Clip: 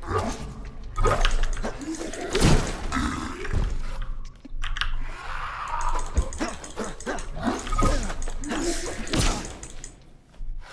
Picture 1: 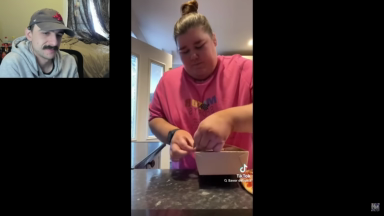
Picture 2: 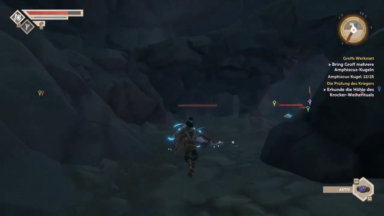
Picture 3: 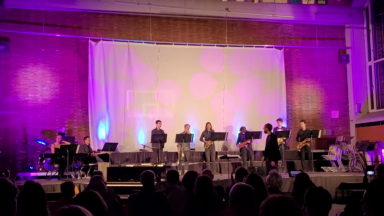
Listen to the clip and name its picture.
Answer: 2